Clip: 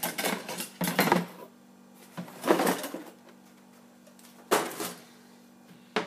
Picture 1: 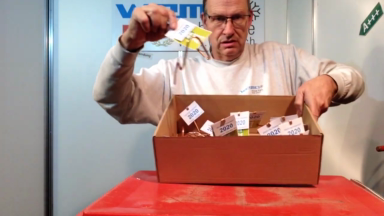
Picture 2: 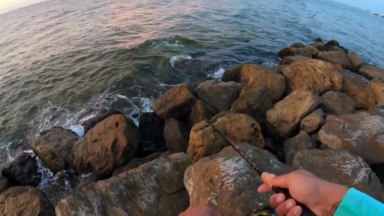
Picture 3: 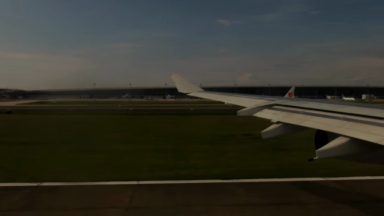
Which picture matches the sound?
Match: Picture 1